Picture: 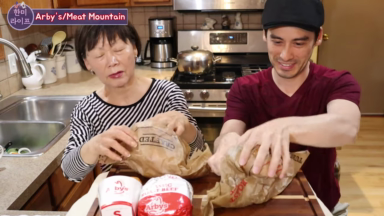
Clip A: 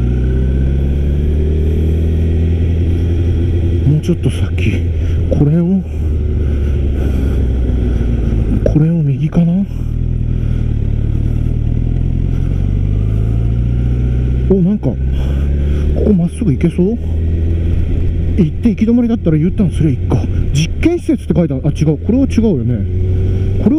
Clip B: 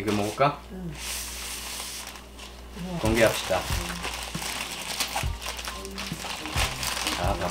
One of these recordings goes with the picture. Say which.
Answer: B